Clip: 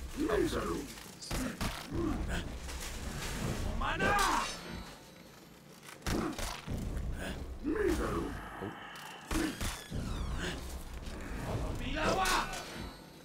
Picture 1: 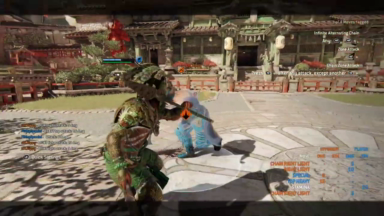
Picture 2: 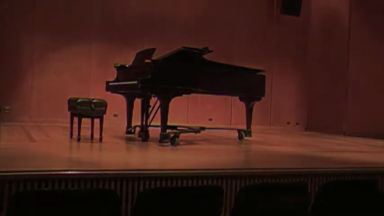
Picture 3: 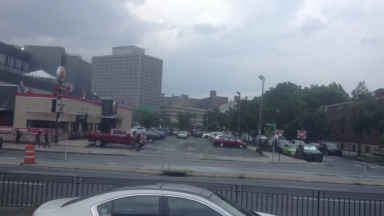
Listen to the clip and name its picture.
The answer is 1